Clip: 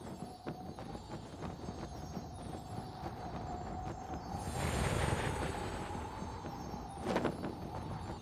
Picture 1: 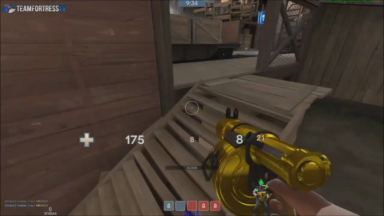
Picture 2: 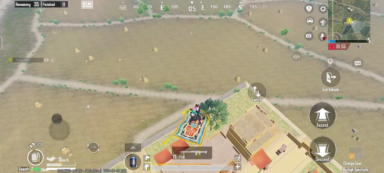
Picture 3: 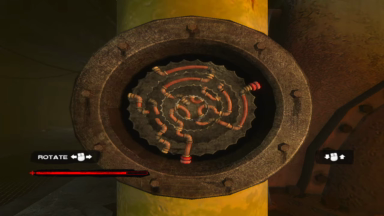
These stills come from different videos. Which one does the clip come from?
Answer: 2